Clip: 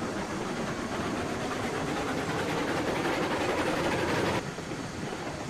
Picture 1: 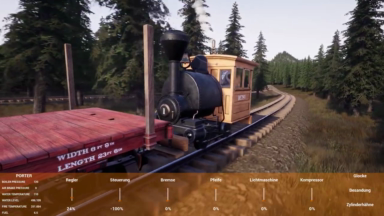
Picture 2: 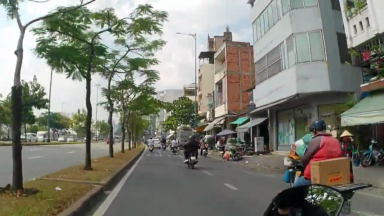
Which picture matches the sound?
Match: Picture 1